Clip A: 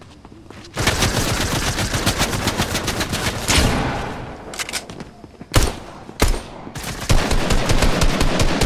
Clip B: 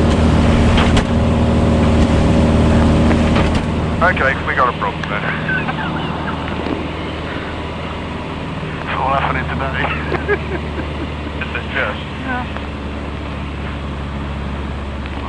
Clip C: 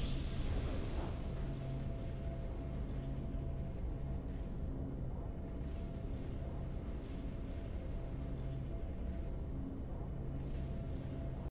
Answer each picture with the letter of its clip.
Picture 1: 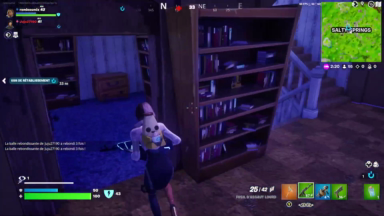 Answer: A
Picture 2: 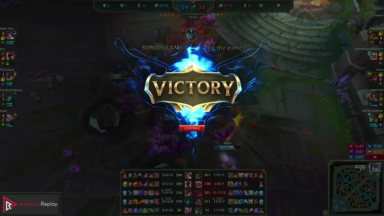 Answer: C